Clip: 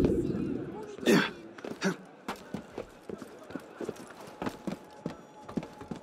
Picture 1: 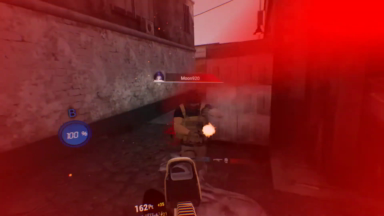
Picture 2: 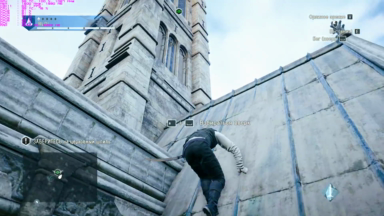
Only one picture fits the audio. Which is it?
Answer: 2